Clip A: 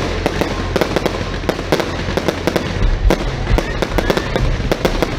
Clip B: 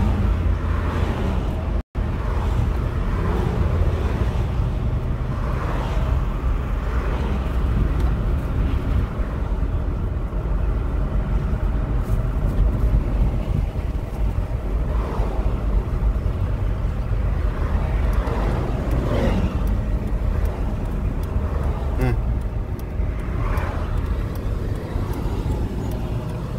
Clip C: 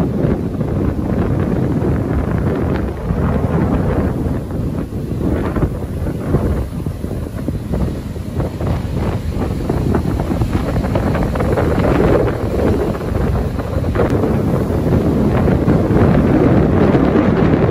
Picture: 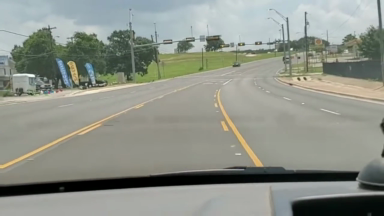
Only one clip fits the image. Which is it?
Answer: B